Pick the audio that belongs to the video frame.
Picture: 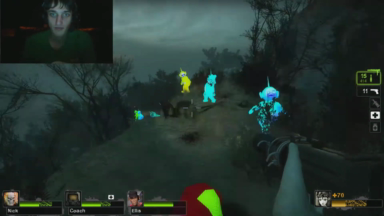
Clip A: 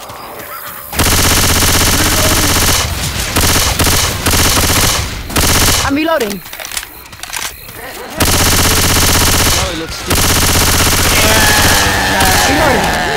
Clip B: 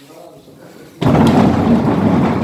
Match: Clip A